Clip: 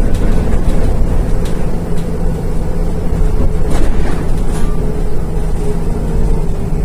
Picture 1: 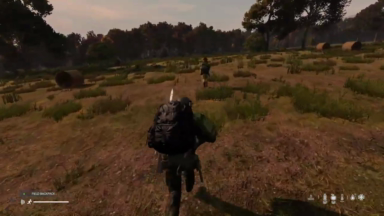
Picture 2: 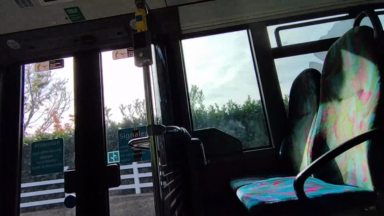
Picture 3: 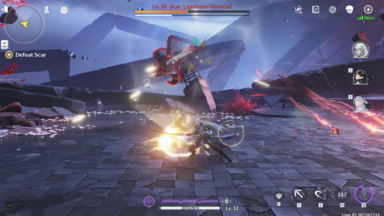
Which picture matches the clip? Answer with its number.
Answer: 2